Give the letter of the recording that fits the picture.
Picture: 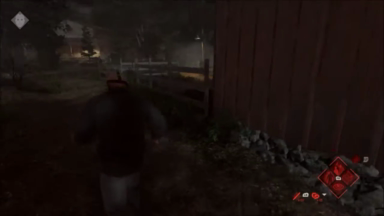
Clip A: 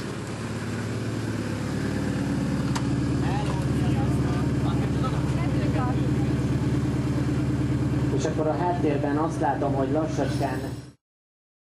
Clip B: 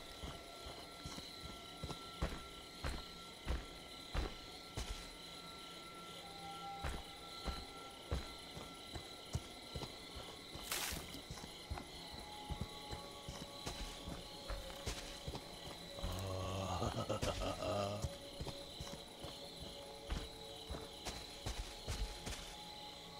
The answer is B